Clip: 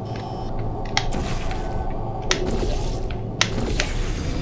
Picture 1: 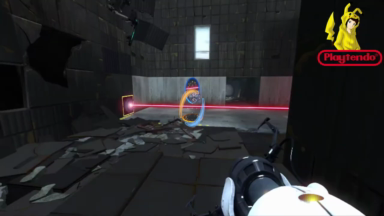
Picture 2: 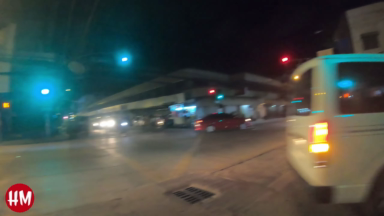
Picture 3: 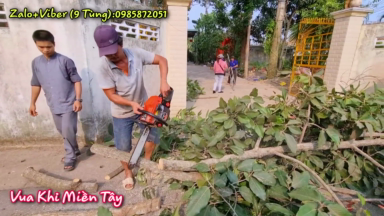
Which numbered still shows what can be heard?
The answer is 1